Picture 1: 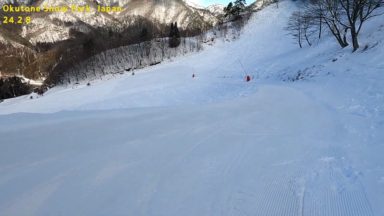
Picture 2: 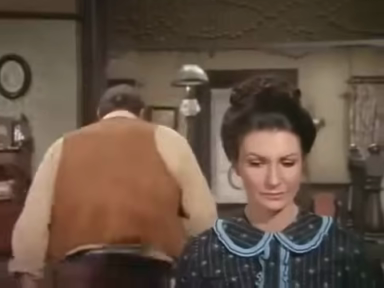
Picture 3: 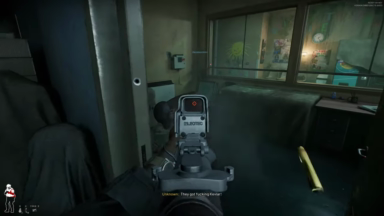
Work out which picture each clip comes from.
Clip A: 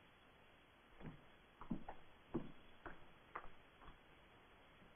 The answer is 2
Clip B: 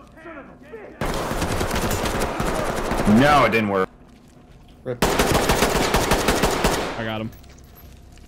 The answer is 3